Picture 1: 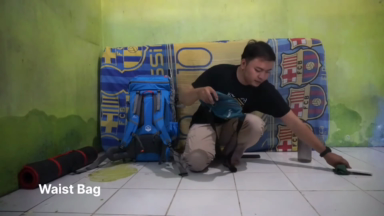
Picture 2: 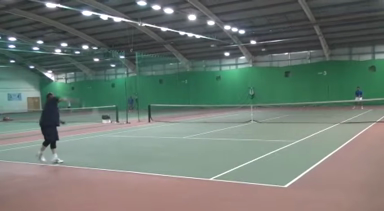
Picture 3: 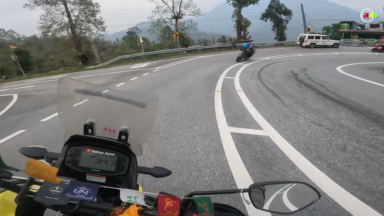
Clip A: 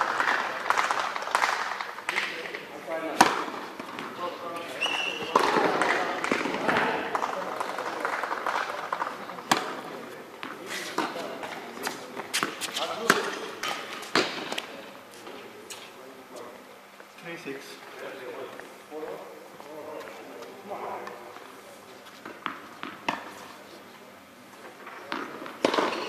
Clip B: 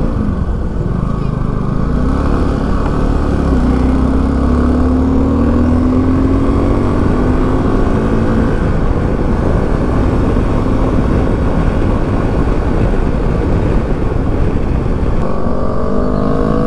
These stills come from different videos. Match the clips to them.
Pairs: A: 2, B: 3